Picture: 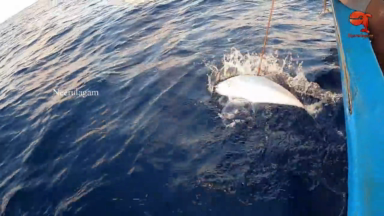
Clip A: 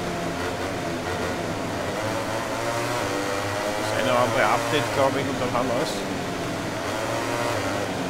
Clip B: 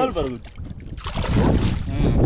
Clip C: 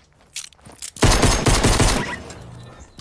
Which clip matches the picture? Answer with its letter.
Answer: B